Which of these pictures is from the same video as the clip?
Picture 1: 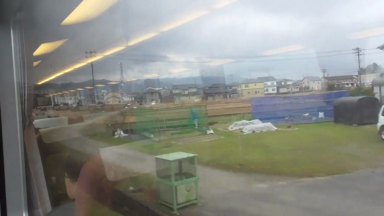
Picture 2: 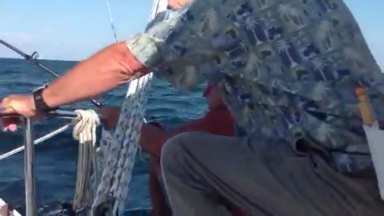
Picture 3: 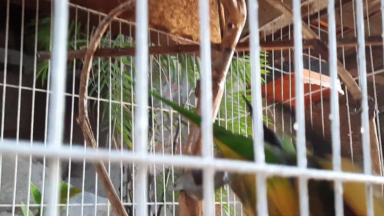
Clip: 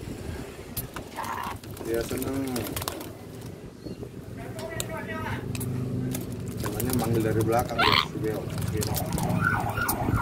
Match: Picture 3